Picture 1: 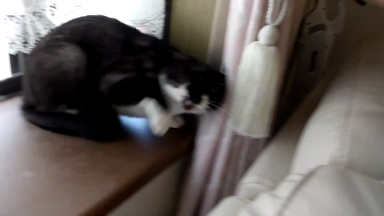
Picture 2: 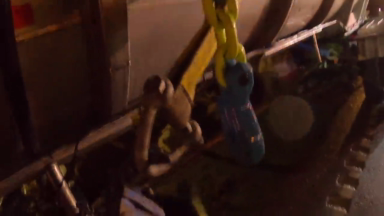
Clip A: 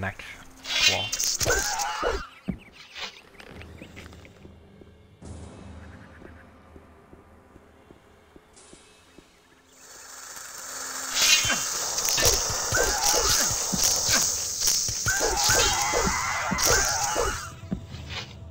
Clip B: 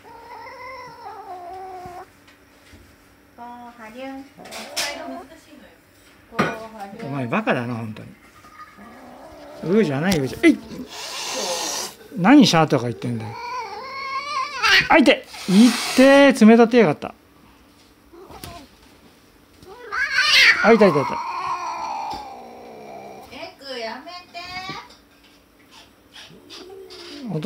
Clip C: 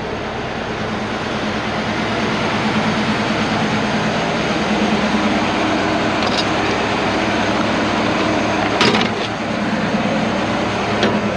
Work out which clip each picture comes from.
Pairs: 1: B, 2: C